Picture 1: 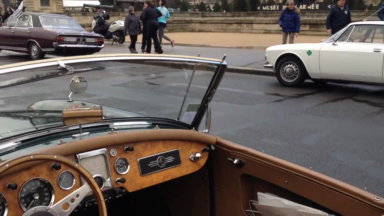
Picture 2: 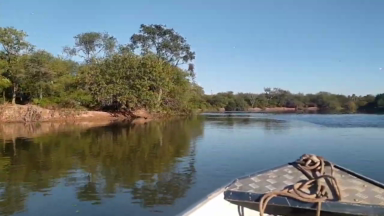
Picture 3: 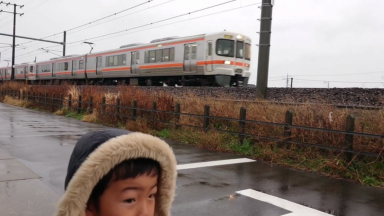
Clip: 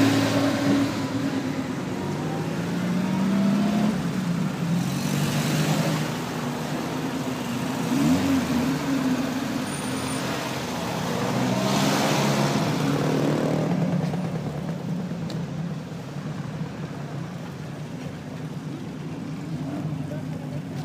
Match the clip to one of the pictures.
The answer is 1